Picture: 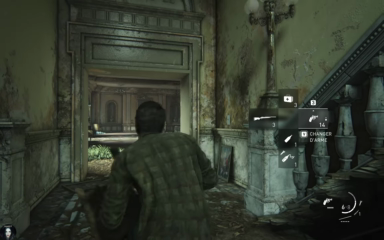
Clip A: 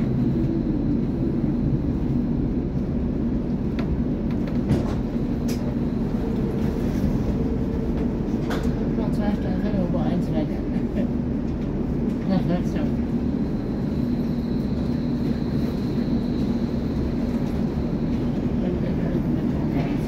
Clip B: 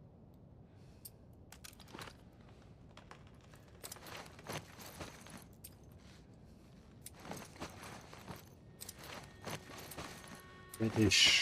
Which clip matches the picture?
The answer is B